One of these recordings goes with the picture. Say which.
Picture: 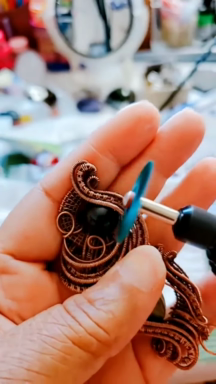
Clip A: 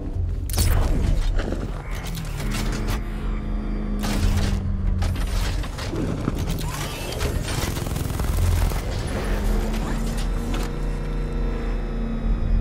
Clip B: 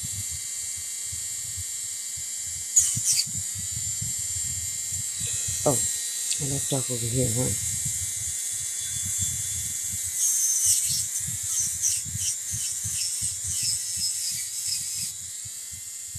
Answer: B